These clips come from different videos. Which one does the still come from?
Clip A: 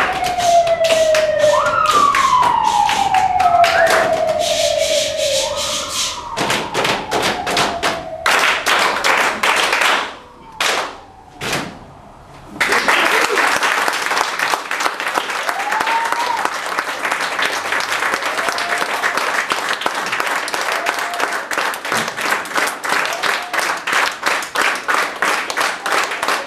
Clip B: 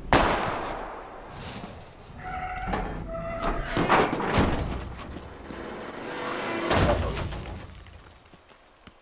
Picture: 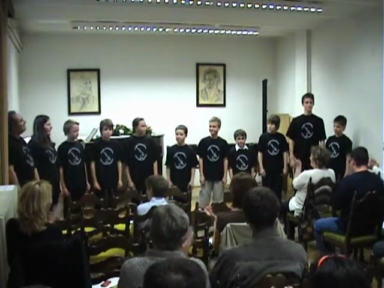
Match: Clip A